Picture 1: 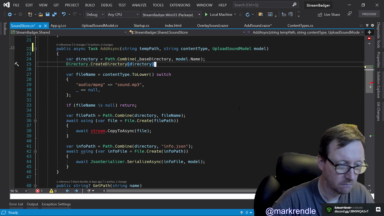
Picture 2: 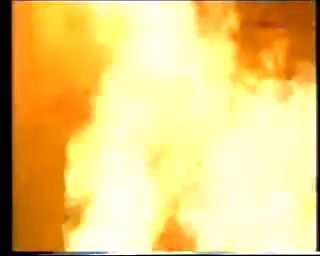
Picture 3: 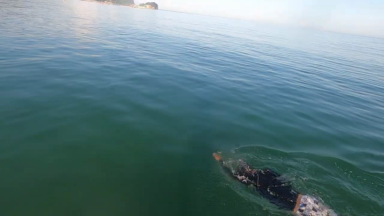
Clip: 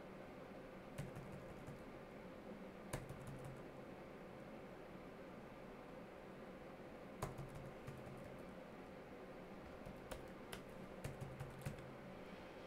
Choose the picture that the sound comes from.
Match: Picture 1